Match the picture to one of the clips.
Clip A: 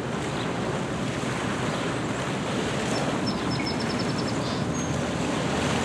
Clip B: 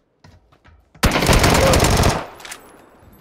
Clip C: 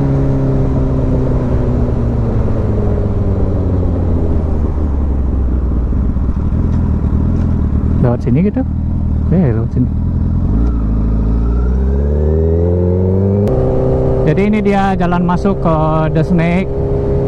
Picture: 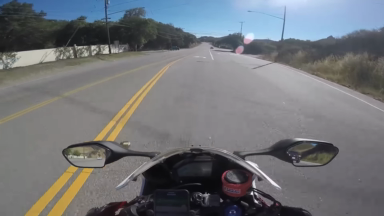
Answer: C